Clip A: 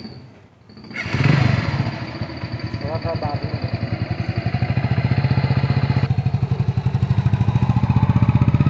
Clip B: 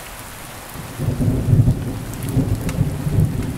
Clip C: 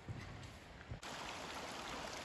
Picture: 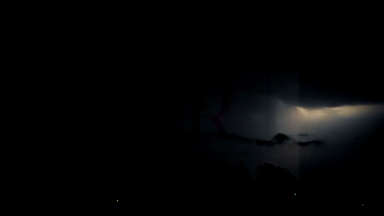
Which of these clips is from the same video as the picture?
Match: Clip B